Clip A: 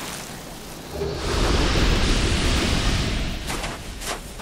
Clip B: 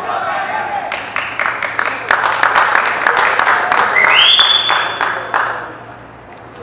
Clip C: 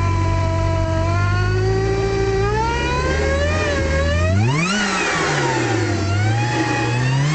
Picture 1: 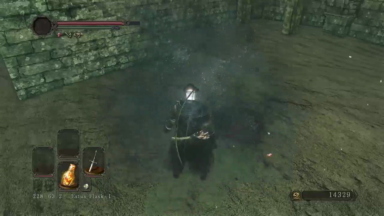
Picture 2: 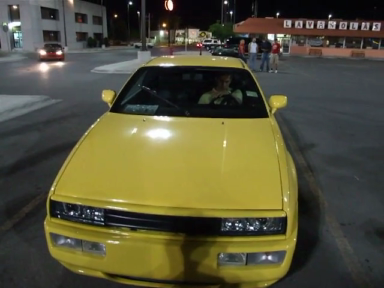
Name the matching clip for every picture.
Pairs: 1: A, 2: C